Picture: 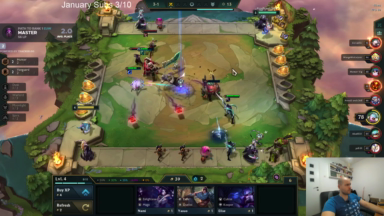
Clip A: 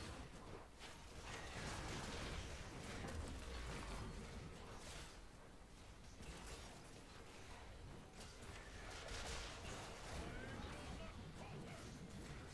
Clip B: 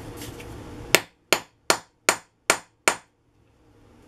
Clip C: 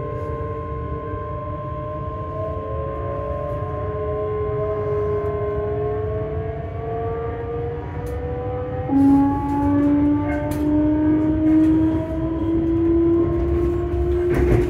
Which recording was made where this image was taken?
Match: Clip A